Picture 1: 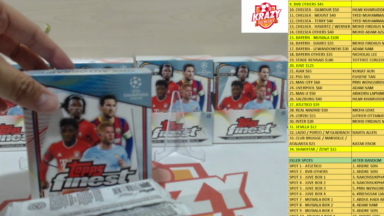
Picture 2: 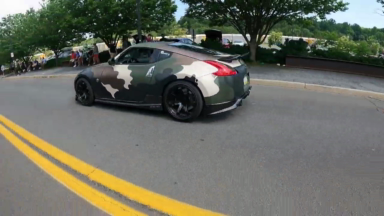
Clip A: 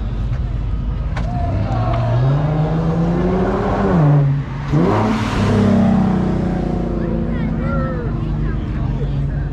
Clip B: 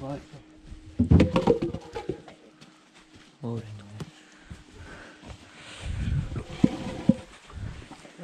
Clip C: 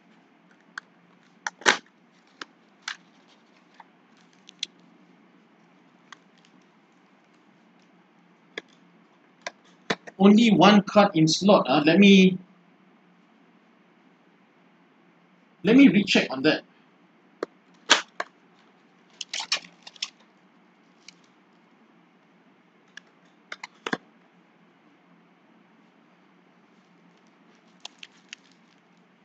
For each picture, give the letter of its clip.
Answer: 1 C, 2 A